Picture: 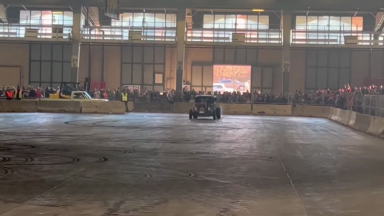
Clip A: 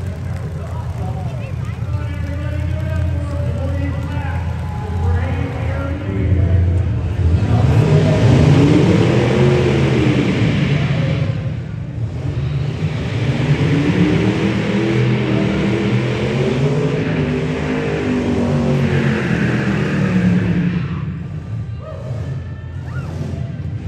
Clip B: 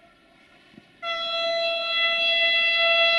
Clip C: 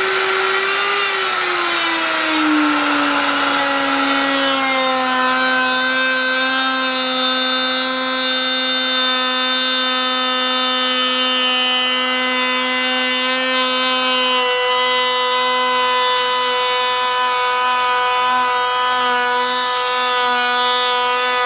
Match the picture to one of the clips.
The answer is A